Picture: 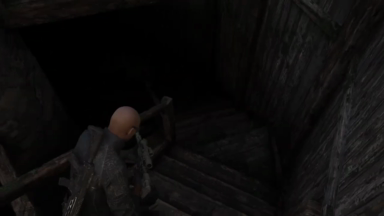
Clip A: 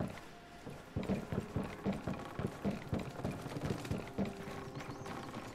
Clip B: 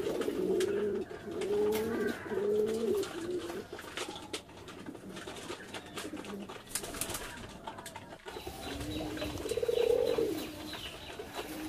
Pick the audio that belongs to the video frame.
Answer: A